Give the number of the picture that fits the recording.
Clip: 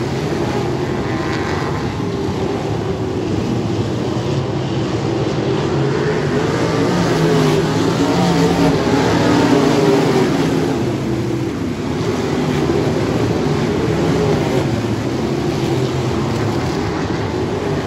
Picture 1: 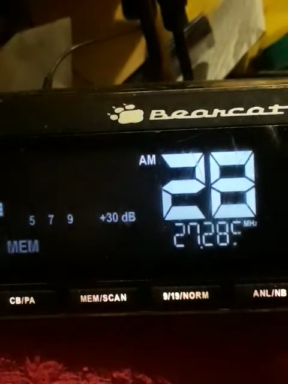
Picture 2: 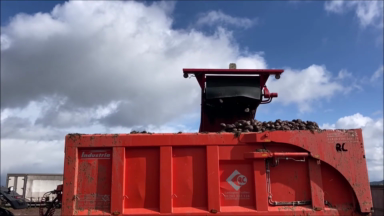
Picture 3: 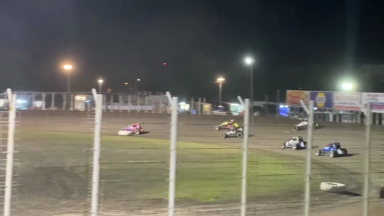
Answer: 3